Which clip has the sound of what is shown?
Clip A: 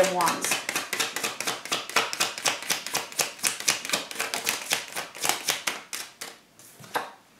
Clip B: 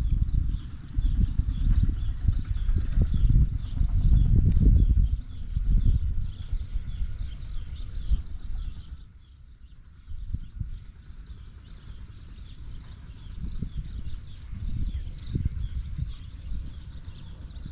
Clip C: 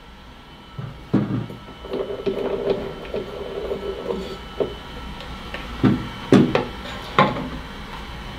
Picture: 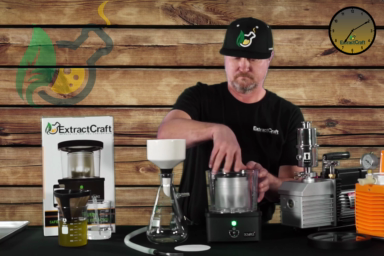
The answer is C